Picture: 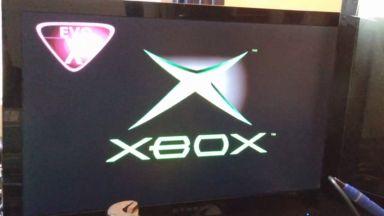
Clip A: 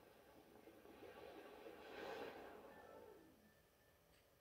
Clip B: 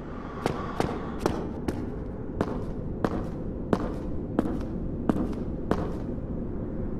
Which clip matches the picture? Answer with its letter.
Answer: A